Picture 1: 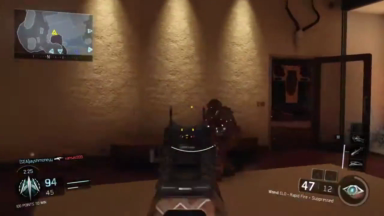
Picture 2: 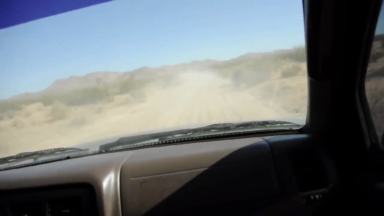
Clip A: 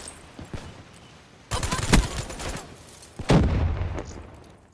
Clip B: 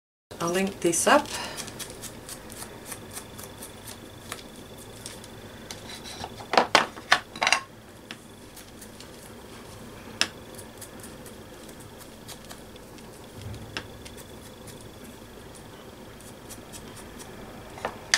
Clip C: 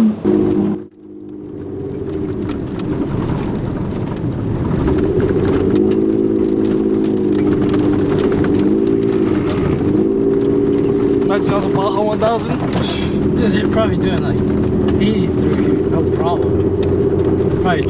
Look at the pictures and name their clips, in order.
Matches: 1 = A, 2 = C